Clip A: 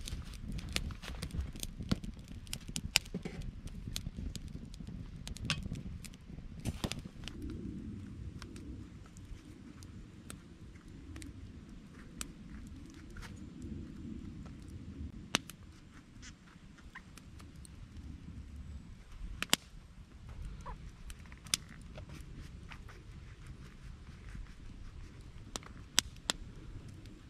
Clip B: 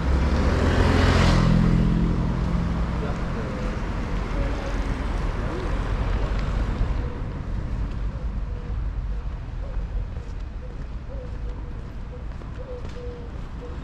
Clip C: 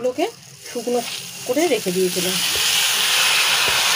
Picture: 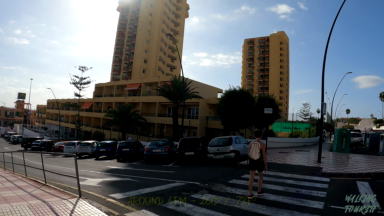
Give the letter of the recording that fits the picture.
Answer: B